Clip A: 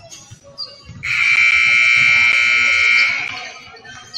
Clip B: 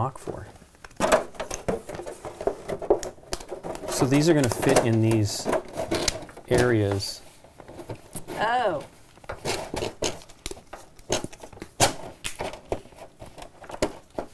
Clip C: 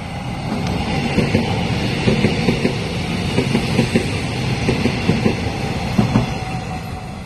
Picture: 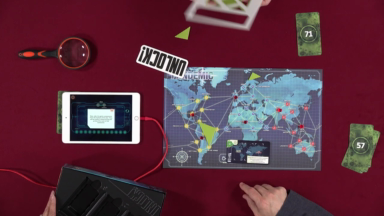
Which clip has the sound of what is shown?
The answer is B